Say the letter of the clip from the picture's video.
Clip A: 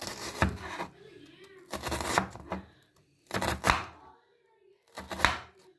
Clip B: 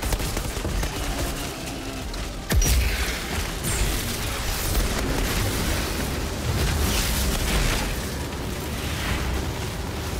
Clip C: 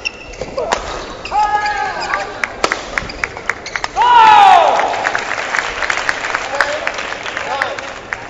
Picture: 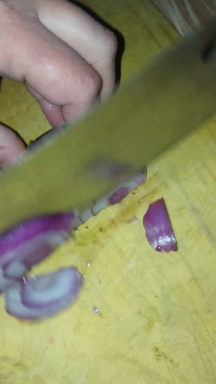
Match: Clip A